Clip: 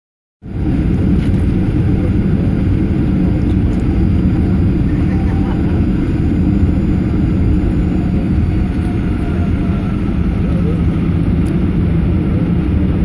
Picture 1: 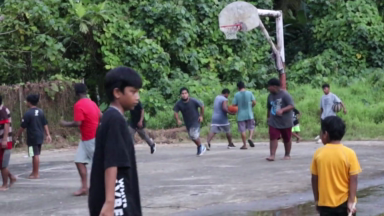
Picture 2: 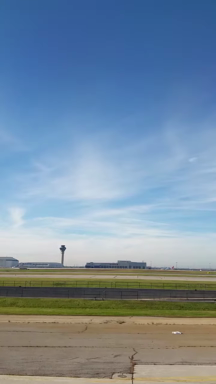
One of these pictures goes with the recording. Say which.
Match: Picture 2